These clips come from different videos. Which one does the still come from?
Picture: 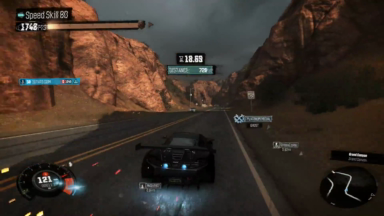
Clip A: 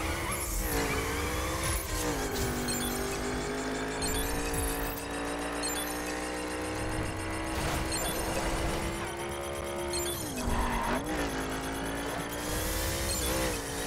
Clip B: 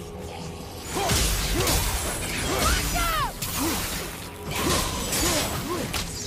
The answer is A